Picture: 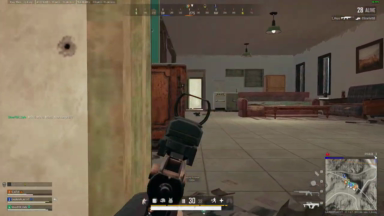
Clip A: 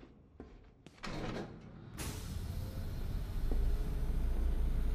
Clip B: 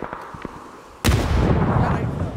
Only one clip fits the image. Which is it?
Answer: B